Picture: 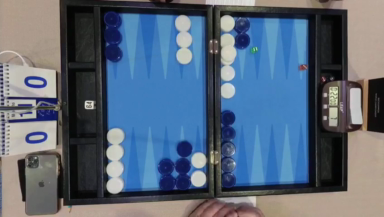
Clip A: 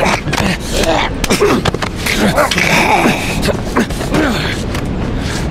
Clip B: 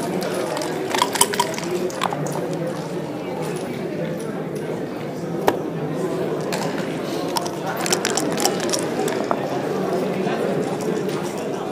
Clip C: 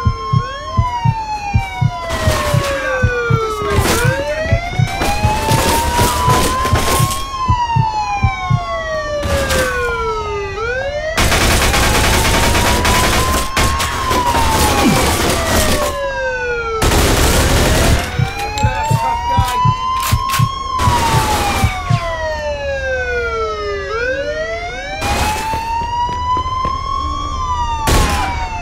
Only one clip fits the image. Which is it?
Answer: B